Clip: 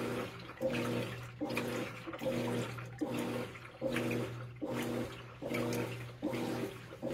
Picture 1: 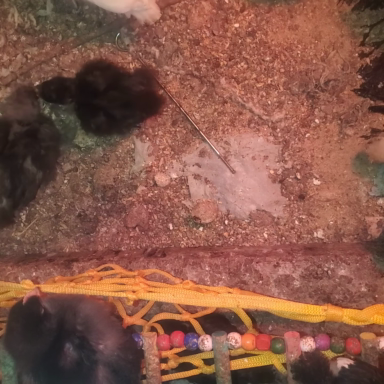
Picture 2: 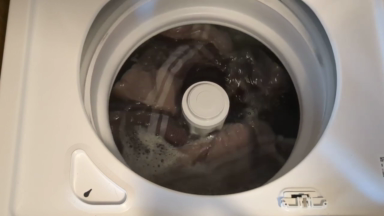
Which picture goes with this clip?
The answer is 2